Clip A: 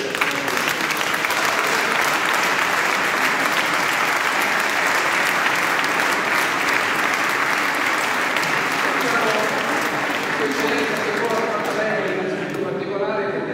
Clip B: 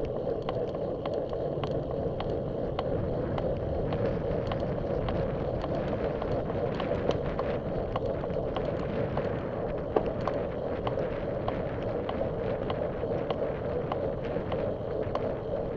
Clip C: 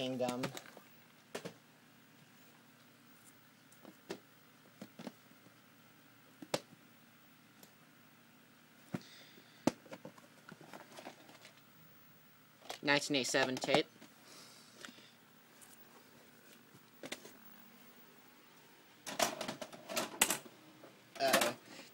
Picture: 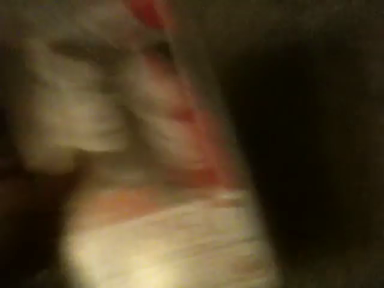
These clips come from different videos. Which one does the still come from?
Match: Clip C